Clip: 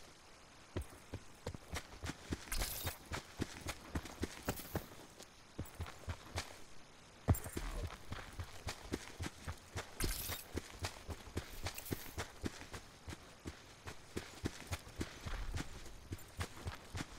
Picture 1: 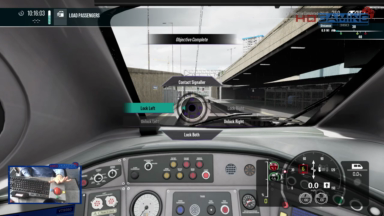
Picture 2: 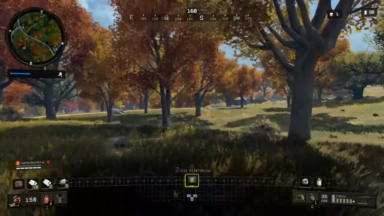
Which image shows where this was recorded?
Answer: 2